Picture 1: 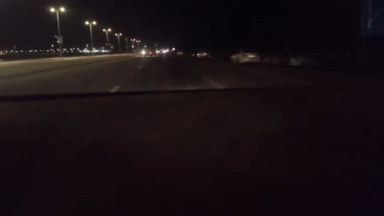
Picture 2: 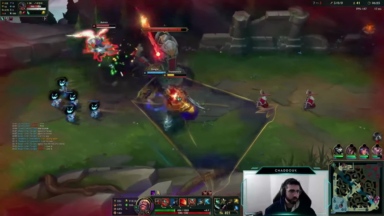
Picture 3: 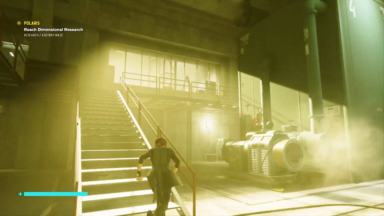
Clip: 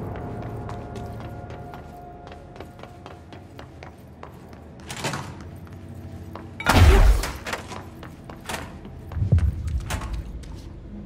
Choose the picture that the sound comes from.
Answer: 3